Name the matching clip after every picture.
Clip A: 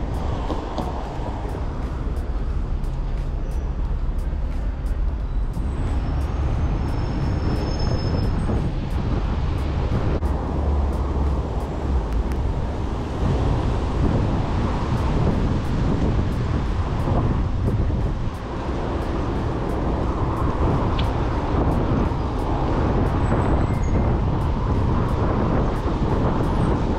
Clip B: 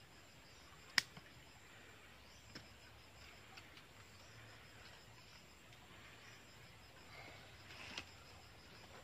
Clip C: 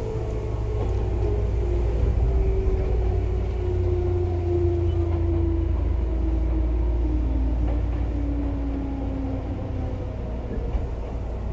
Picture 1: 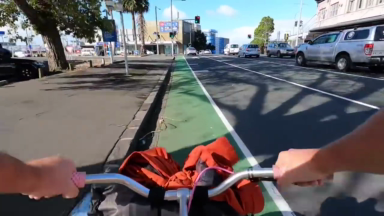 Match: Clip A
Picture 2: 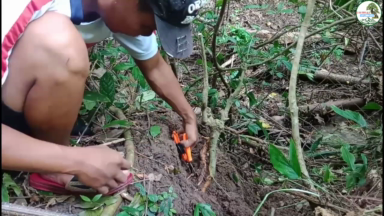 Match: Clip B